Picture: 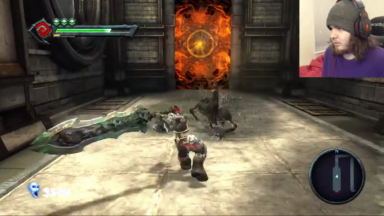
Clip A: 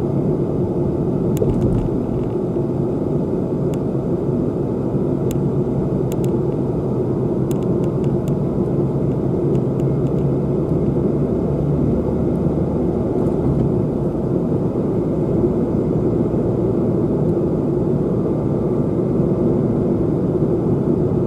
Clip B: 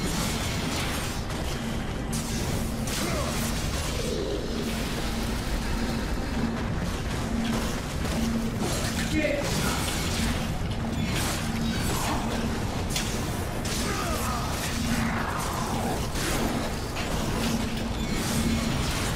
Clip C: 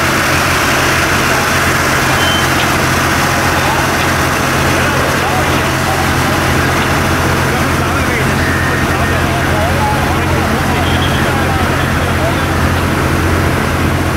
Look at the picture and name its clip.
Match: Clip B